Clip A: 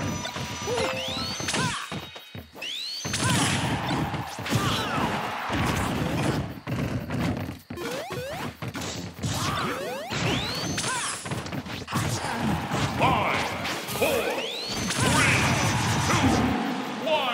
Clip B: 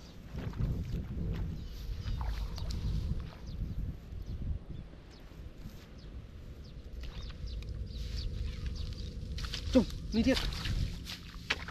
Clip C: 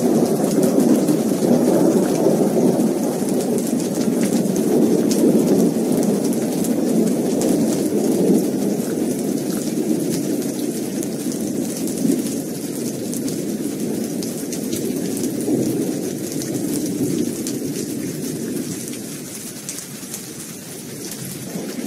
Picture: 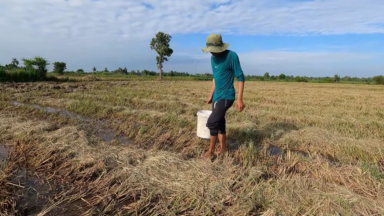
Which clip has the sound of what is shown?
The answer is B